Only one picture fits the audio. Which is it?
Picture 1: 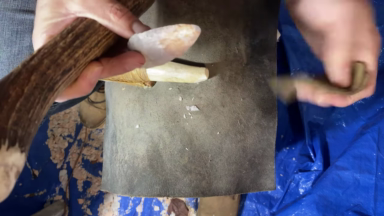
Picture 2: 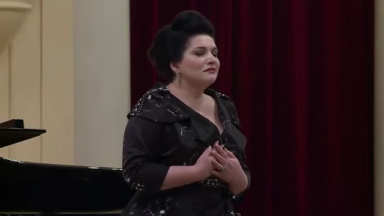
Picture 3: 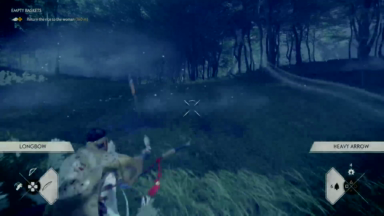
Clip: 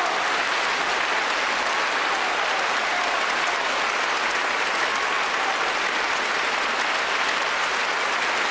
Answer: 2